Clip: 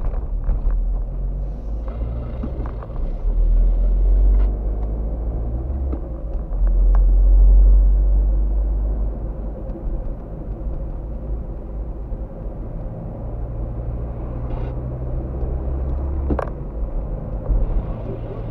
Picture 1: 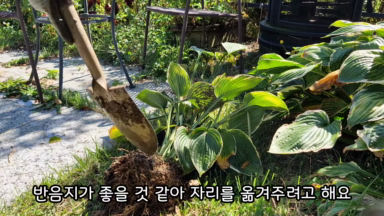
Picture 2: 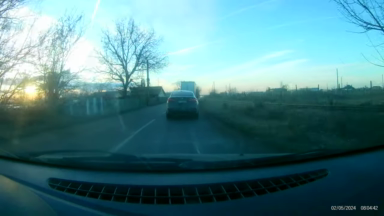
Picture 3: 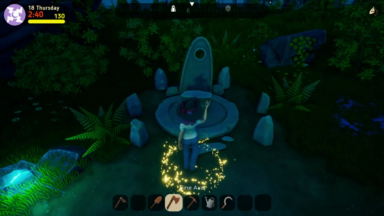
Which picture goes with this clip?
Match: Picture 2